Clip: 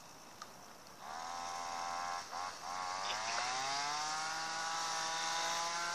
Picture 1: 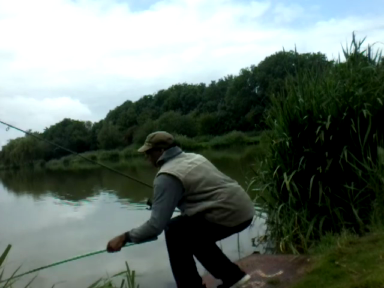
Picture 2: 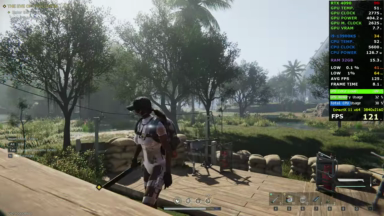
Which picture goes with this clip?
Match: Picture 1